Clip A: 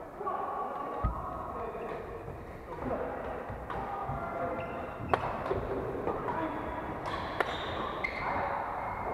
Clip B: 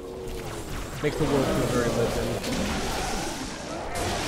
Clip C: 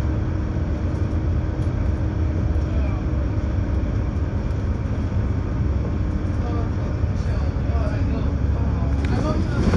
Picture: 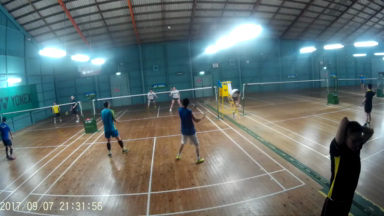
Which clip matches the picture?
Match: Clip A